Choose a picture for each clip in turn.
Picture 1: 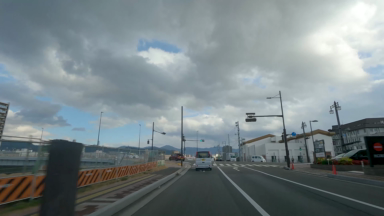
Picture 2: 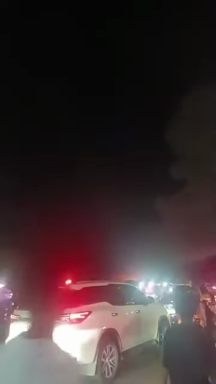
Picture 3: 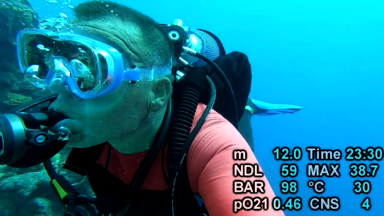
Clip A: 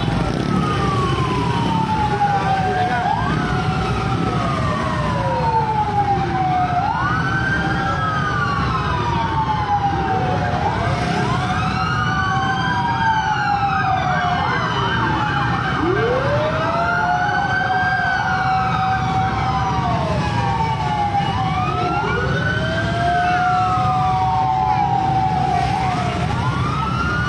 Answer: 2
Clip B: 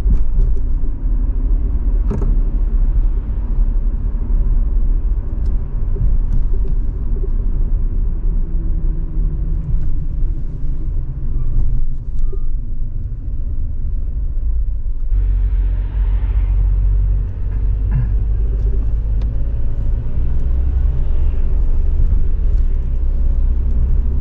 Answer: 1